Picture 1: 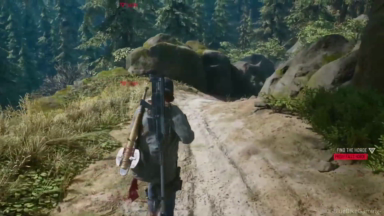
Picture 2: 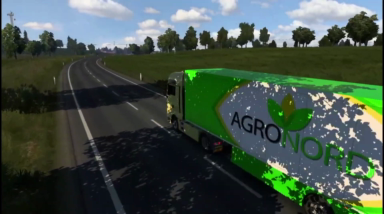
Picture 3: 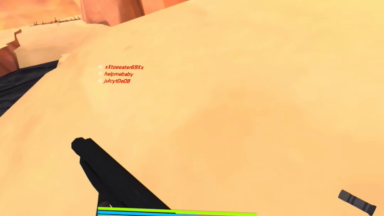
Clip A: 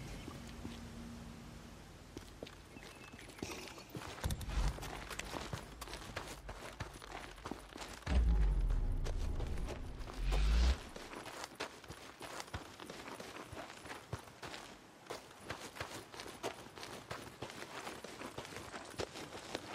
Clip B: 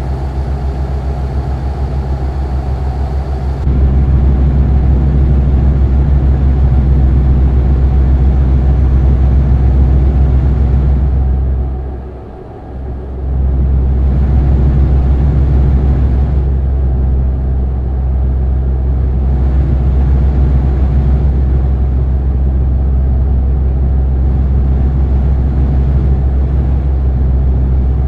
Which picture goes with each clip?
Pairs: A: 1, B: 2